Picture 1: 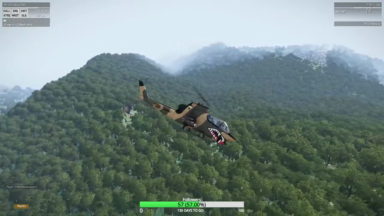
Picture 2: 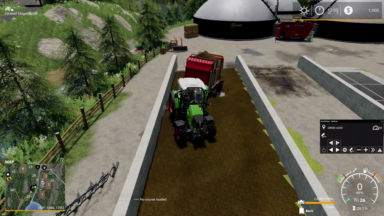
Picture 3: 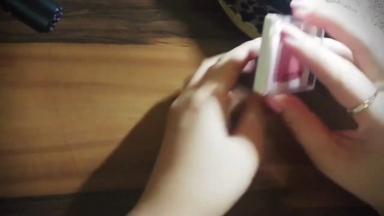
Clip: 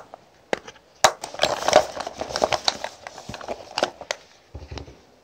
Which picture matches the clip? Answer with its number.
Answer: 3